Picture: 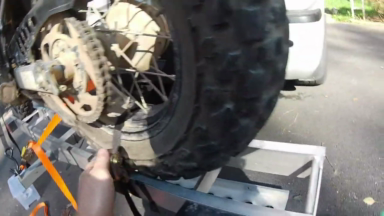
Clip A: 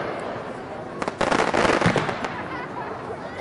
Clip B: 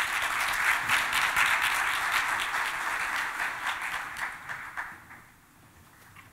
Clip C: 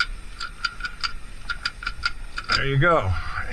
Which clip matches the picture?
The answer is C